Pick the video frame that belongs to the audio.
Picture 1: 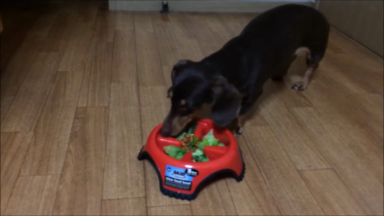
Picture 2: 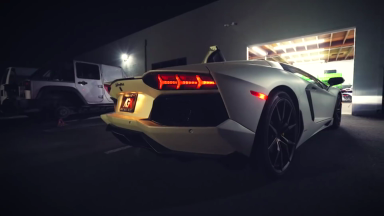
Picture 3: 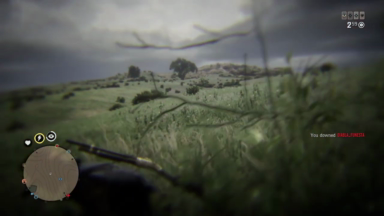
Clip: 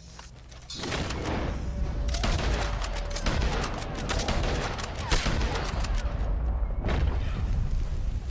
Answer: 3